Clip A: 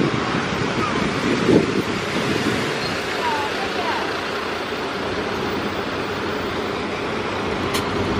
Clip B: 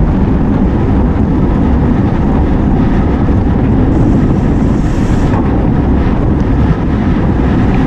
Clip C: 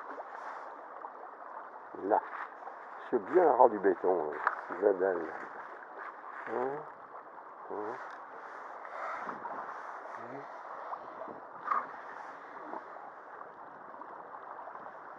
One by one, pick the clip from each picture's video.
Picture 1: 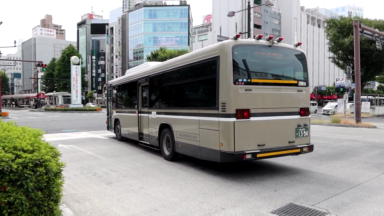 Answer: A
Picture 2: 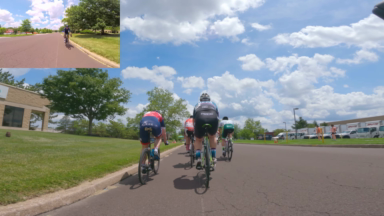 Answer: B